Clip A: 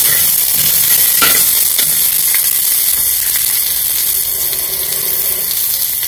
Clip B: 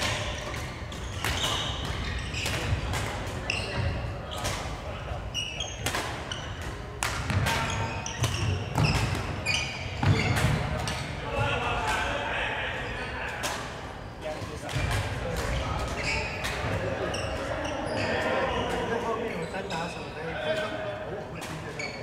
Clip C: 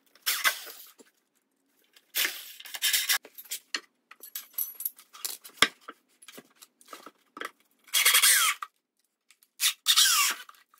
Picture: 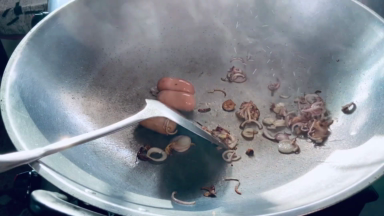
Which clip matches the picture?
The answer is A